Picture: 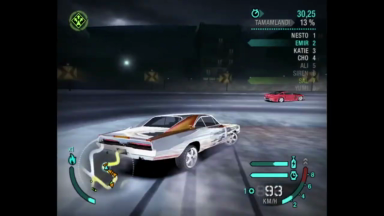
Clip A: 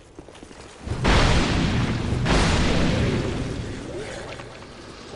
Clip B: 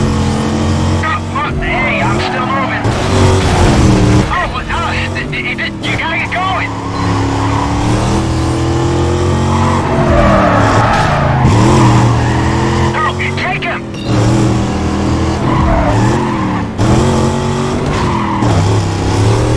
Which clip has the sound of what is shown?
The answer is B